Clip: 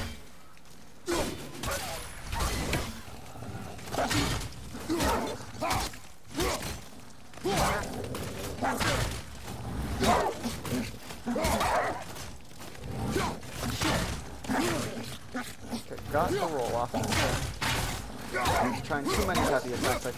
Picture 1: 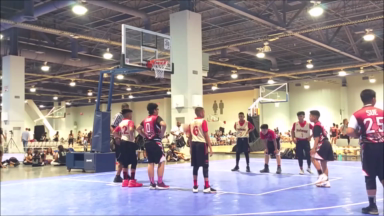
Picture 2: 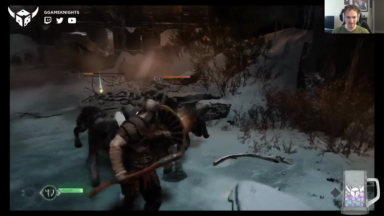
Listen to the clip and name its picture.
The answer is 2